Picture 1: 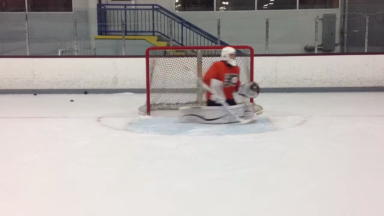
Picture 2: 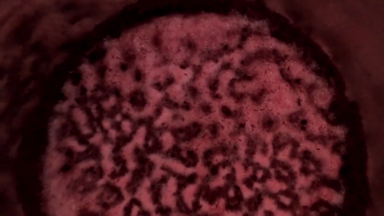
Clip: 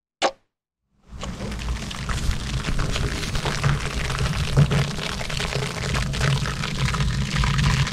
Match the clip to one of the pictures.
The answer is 2